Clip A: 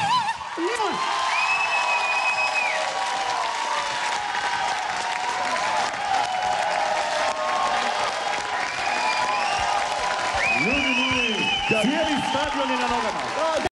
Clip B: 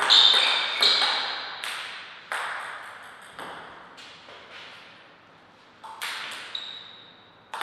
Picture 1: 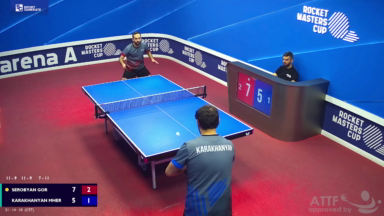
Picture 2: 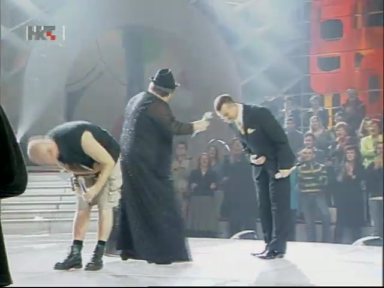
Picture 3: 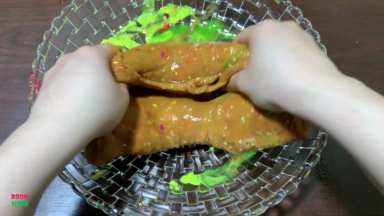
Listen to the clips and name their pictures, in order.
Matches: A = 2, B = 1